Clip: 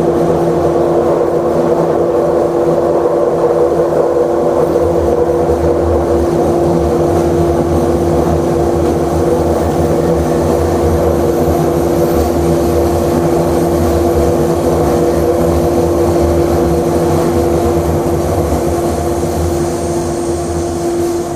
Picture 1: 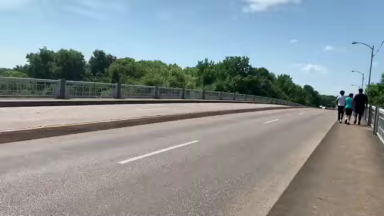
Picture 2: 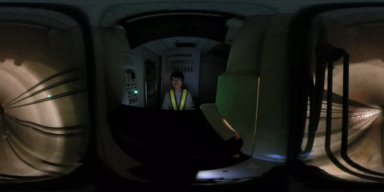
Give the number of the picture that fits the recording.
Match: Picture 2